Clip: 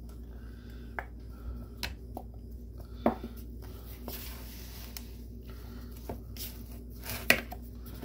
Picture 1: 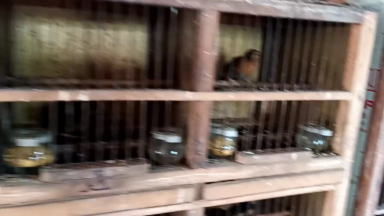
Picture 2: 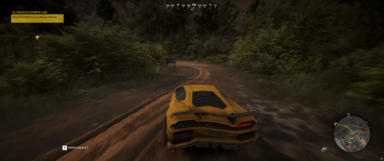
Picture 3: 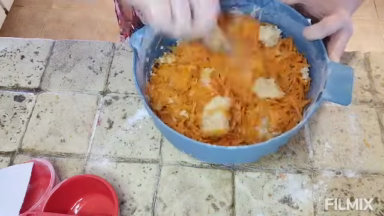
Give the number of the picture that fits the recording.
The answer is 3